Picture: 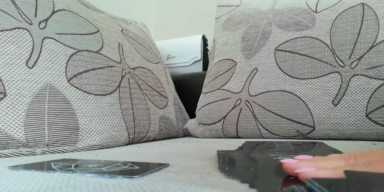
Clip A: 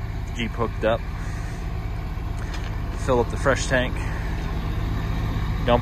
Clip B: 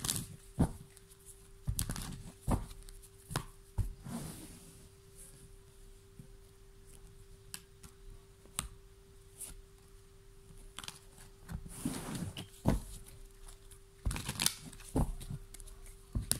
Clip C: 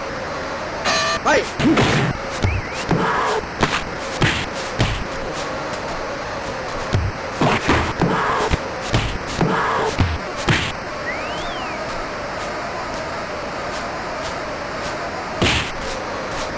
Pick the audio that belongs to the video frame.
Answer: B